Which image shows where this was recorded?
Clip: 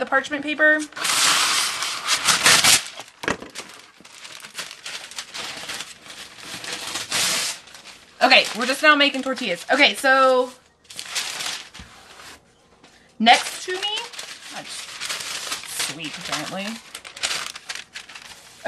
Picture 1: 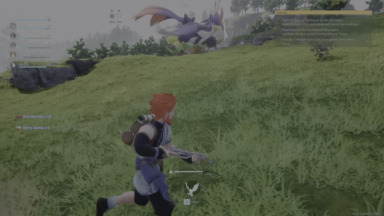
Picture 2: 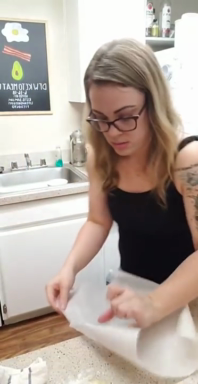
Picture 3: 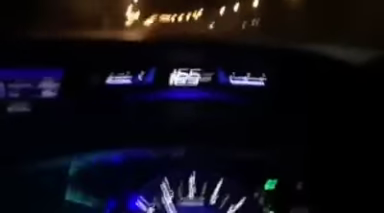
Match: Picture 2